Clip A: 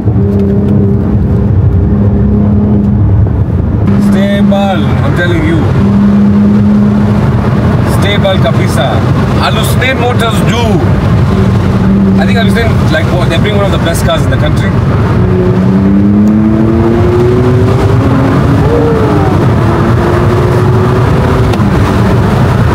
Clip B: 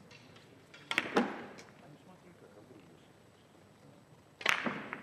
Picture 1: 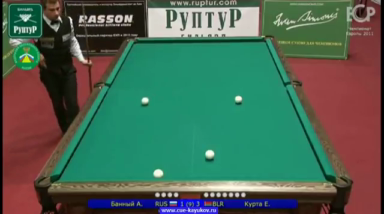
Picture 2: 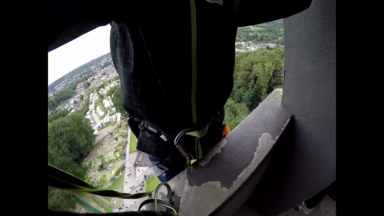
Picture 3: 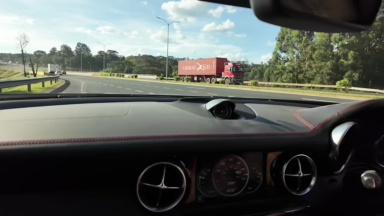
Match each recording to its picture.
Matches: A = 3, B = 1